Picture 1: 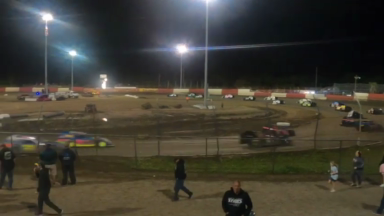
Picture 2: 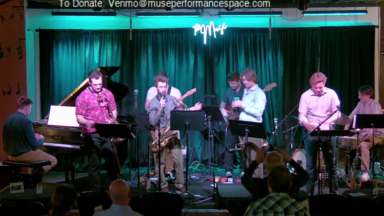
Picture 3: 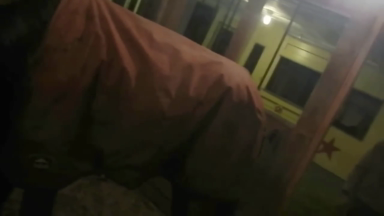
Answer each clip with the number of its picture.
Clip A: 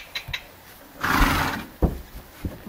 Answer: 3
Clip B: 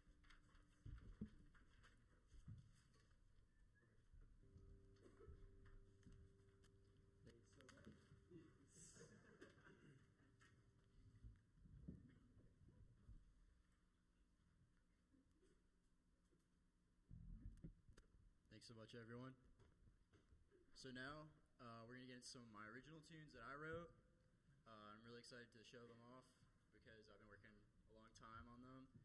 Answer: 2